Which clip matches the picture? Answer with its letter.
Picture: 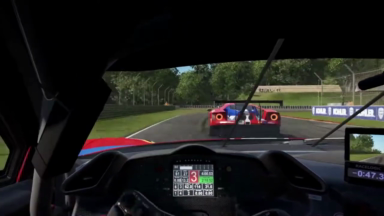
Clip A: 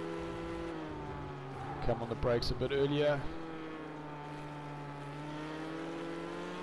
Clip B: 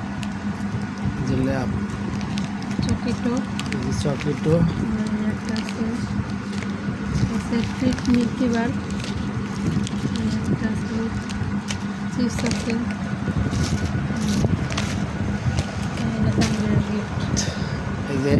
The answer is A